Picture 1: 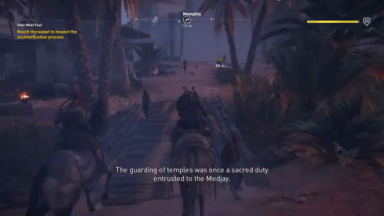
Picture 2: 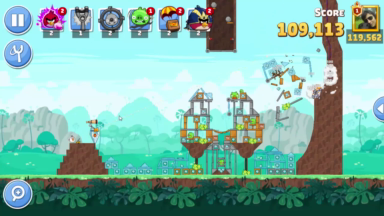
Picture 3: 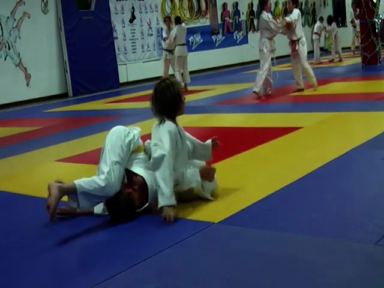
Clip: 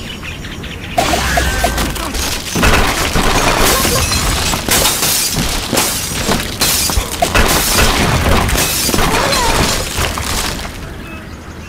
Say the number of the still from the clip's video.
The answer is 2